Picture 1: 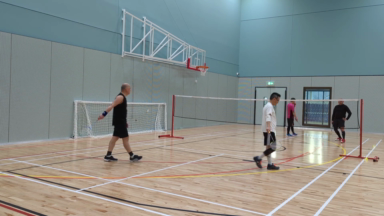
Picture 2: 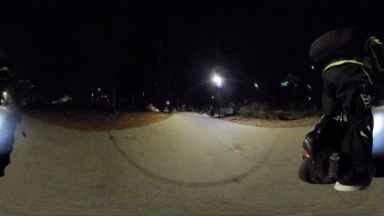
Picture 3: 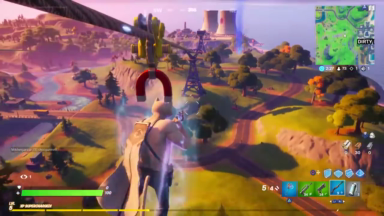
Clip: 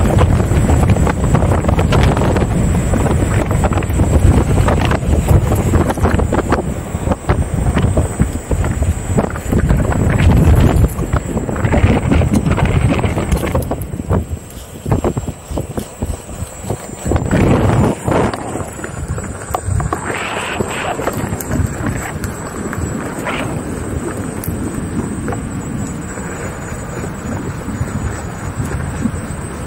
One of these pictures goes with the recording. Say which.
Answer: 2